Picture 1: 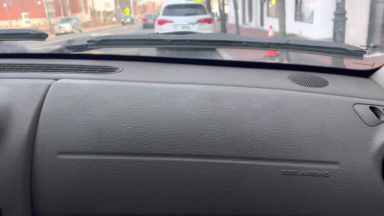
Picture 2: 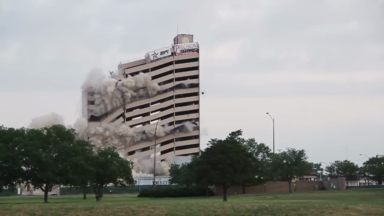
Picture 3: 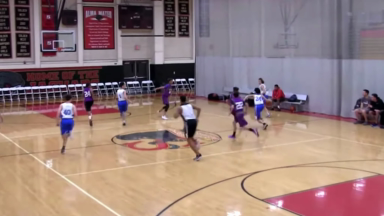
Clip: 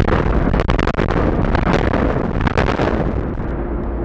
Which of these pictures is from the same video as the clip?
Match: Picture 2